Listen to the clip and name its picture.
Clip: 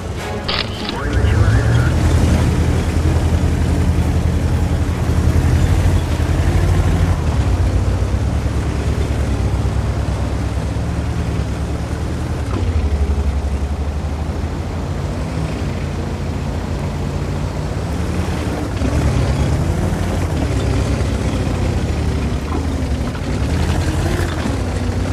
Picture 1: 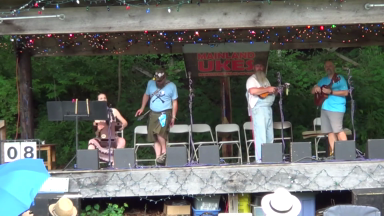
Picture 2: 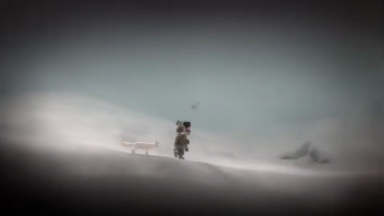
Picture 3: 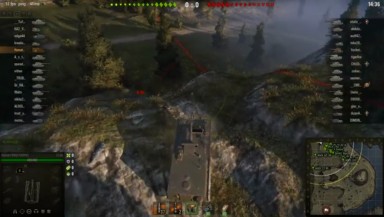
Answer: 3